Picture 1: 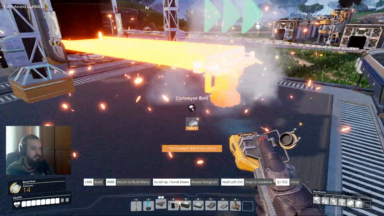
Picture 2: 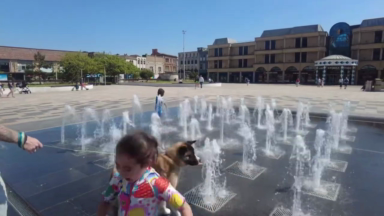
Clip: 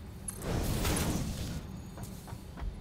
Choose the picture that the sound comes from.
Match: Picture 1